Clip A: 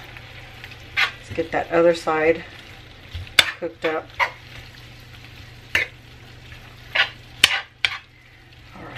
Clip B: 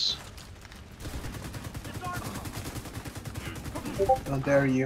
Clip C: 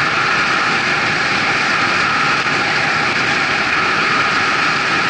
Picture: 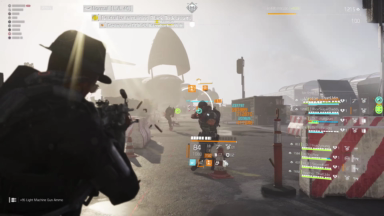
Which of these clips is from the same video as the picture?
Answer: B